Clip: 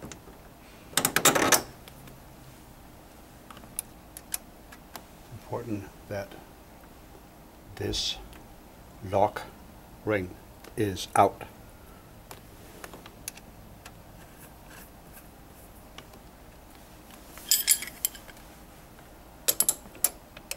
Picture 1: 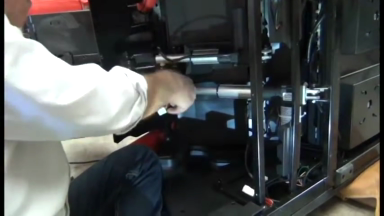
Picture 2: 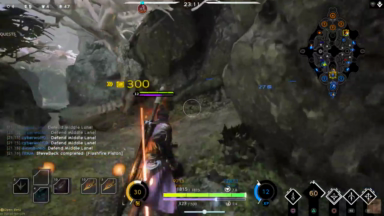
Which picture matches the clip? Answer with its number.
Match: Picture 1